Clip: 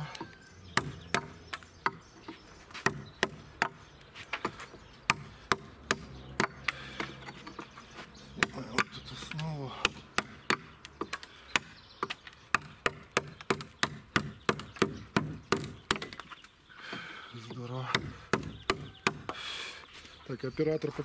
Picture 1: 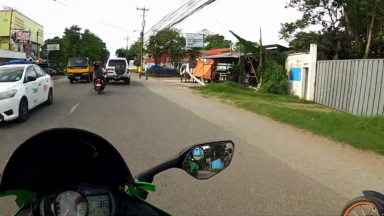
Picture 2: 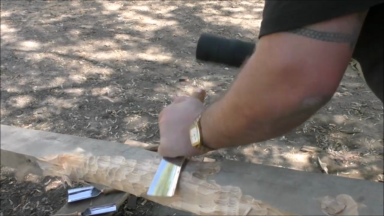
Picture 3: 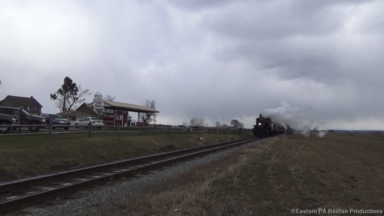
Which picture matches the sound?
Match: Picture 2